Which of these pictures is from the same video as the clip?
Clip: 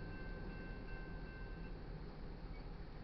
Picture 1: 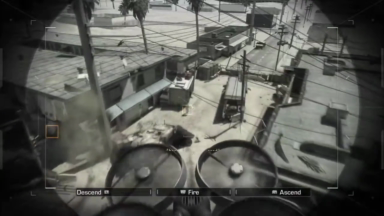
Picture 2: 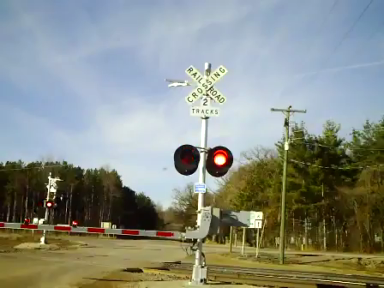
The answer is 2